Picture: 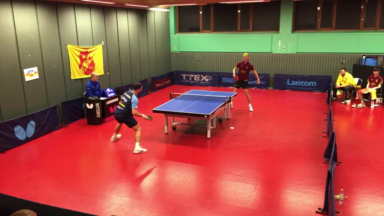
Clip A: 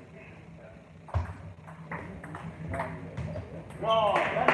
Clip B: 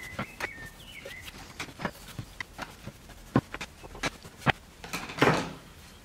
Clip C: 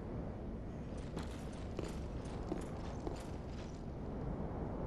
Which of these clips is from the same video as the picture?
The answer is A